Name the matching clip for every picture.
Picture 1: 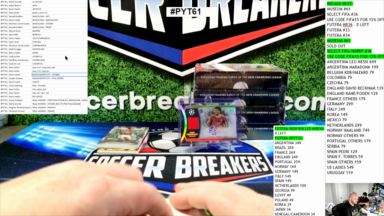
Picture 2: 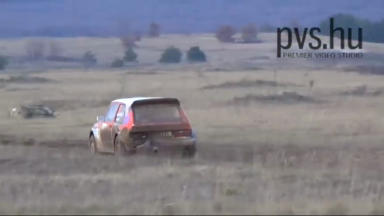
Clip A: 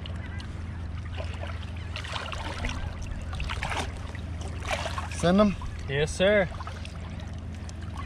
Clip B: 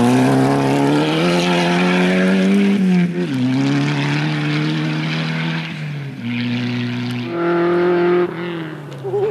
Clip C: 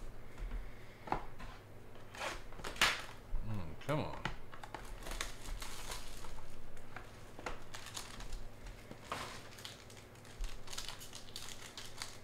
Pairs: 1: C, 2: B